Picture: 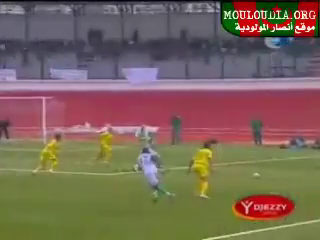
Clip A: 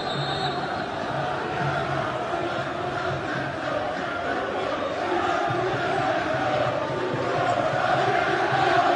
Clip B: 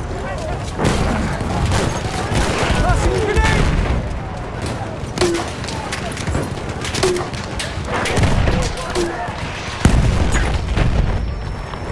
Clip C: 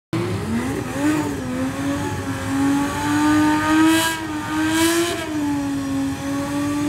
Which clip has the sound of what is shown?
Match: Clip A